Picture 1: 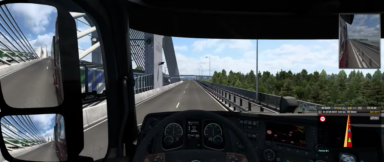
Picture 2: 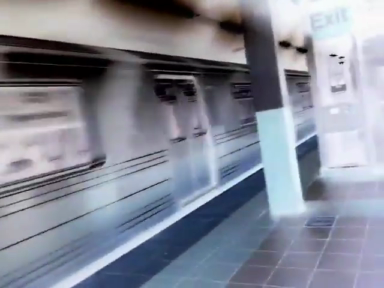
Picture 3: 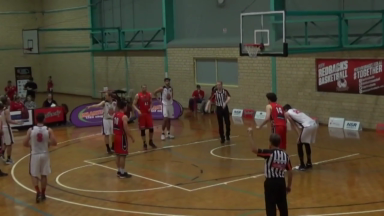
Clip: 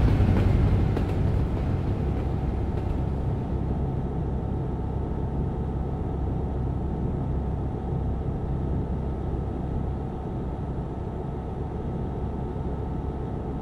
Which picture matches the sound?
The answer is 1